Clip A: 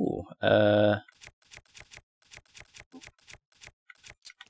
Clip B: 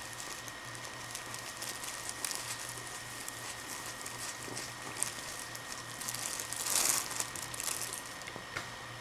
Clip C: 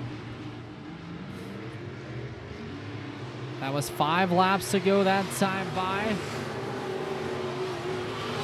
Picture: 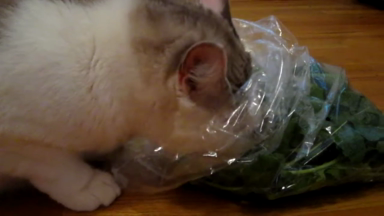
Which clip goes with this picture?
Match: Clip B